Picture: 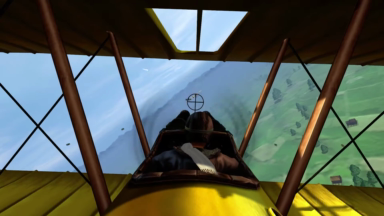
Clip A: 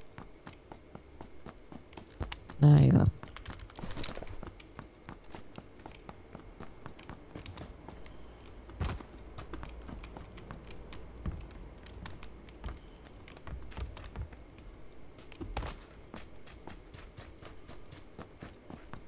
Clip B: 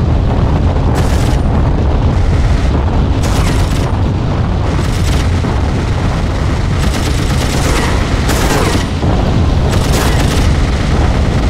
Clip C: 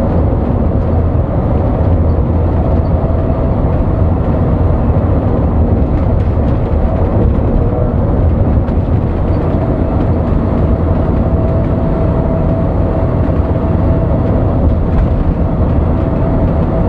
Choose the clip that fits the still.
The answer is B